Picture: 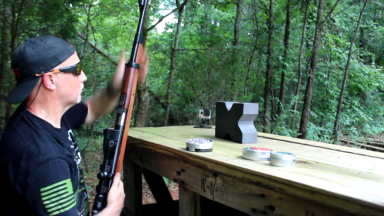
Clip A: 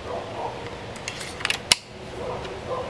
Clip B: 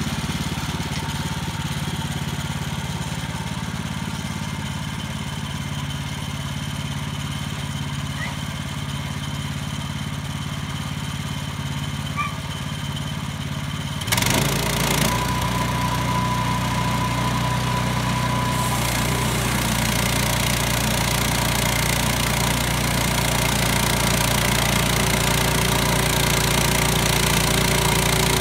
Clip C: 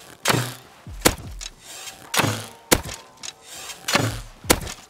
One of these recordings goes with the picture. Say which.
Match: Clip A